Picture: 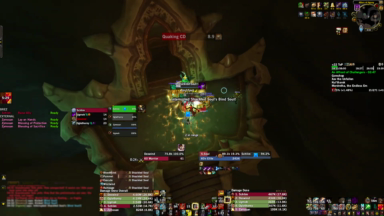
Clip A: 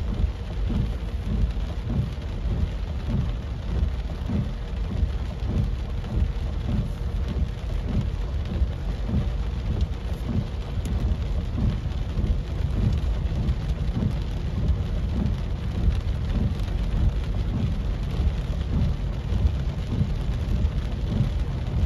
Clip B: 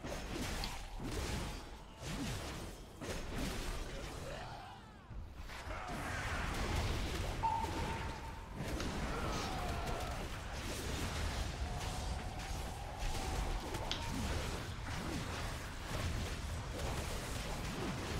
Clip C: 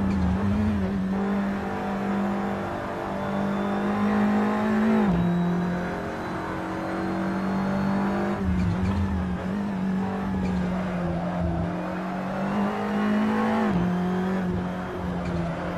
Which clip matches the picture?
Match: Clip B